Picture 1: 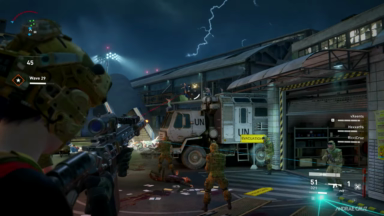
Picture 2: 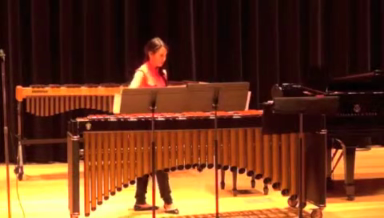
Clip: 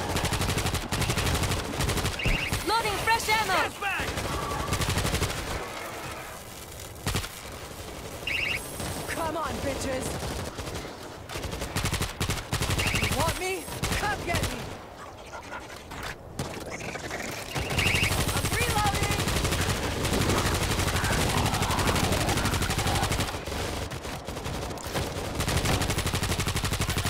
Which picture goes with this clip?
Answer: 1